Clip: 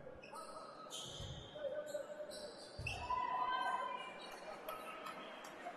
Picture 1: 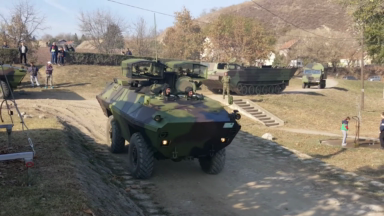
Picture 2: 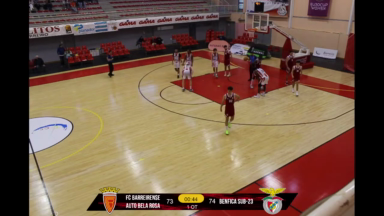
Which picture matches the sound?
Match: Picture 2